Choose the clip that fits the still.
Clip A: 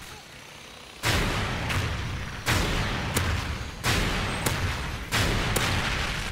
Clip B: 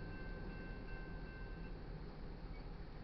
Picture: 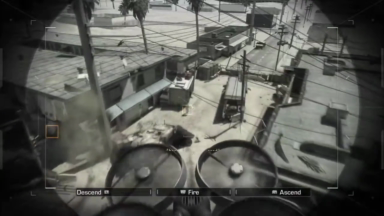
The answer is A